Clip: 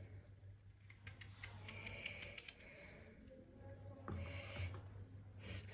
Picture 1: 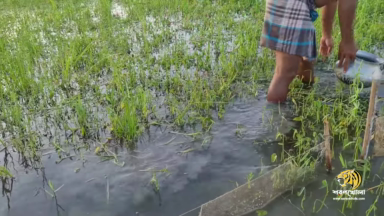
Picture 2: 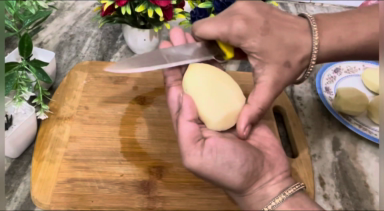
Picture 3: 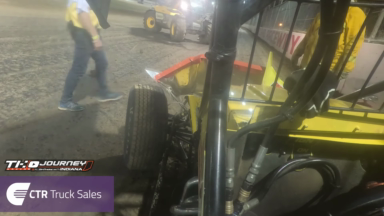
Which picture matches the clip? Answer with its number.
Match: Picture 2